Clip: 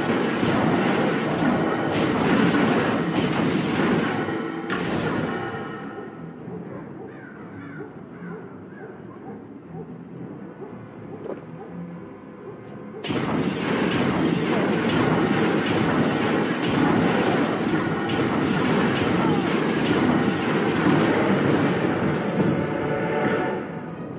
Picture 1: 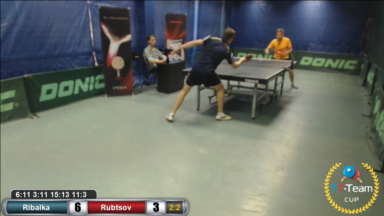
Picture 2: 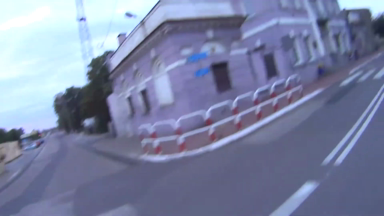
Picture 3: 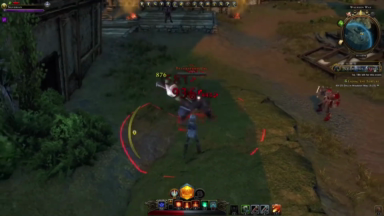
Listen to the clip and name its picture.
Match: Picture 3